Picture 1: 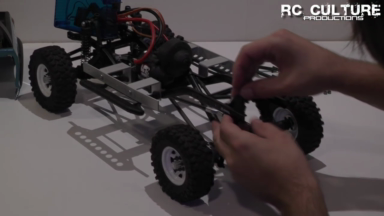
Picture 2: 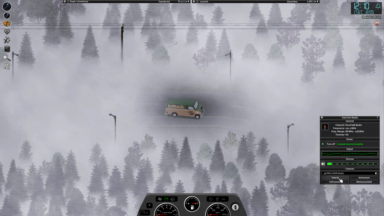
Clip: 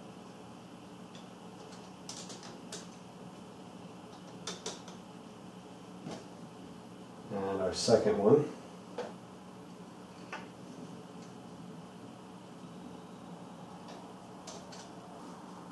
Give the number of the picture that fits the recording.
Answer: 1